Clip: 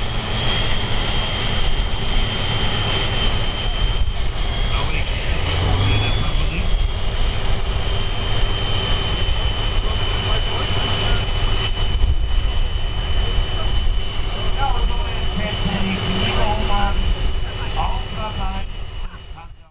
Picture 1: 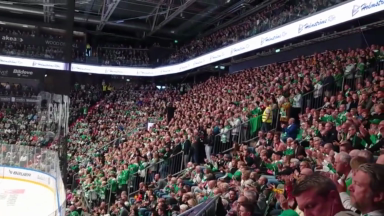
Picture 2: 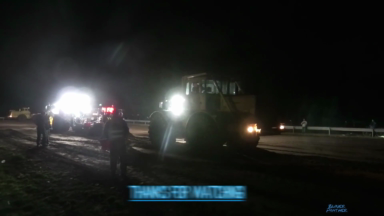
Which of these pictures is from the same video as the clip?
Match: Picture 2